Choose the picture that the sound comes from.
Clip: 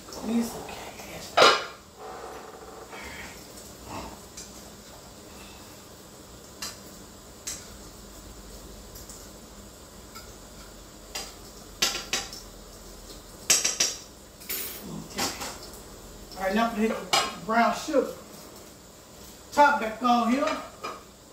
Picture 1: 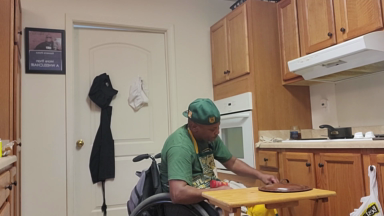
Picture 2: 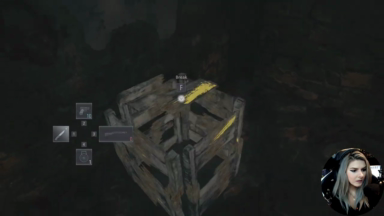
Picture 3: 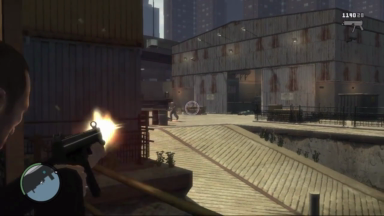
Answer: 1